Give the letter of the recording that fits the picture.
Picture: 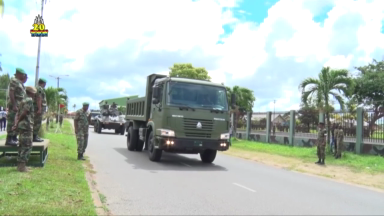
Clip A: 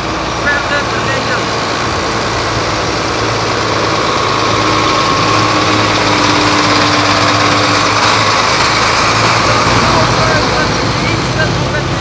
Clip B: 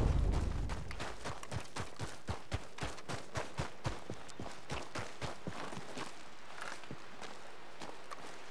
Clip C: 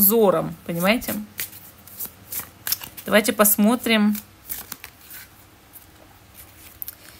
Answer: A